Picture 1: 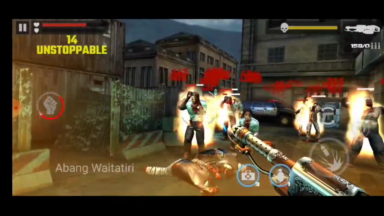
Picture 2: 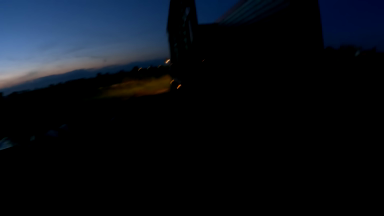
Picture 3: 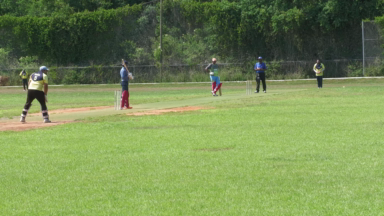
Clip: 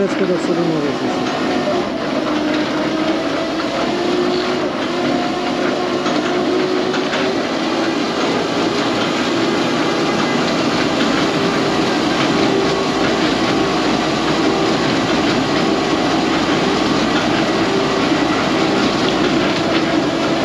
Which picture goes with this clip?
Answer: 2